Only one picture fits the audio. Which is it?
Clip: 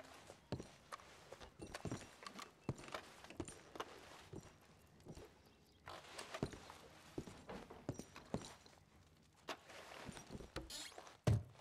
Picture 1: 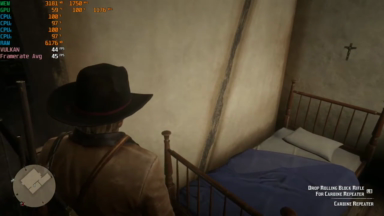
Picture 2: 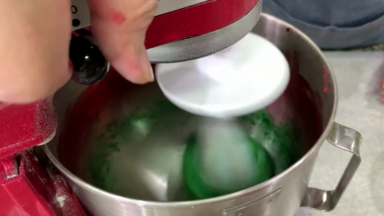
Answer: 1